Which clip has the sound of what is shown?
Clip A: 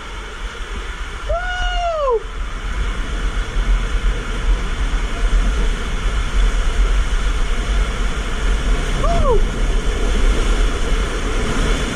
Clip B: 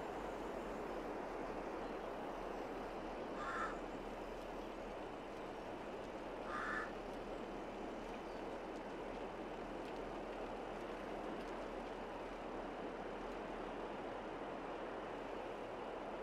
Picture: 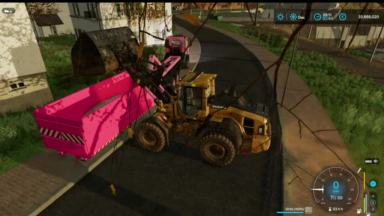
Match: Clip B